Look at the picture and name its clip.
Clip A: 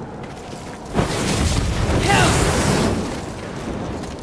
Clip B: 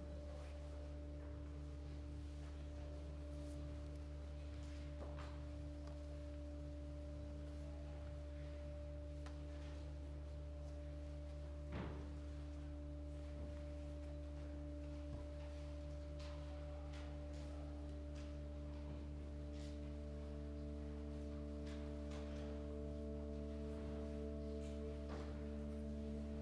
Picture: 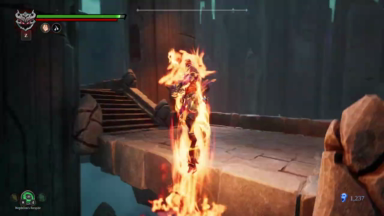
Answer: A